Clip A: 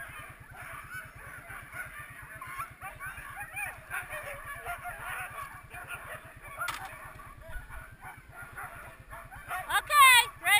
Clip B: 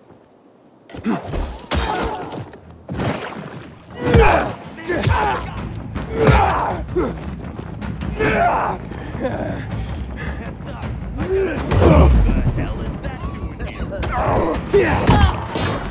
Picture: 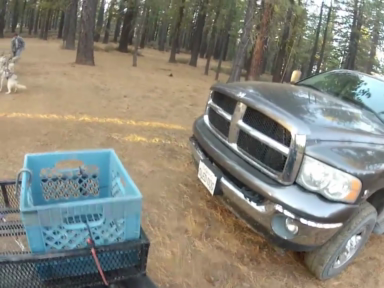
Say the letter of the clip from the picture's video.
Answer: A